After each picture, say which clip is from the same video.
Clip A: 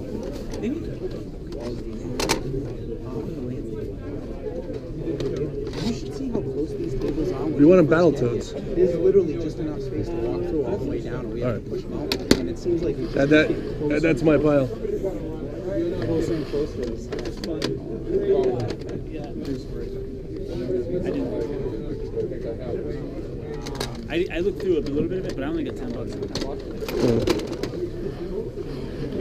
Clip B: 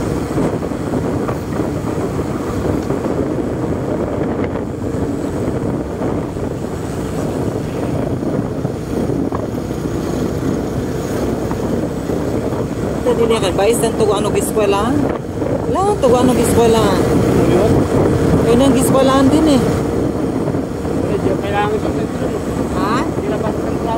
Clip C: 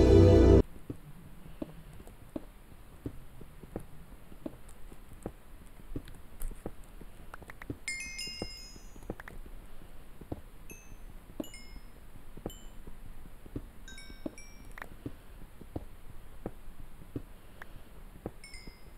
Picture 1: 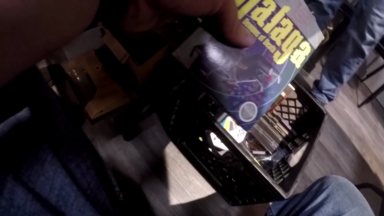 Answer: A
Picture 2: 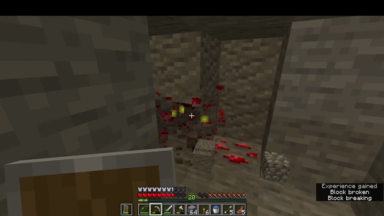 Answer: C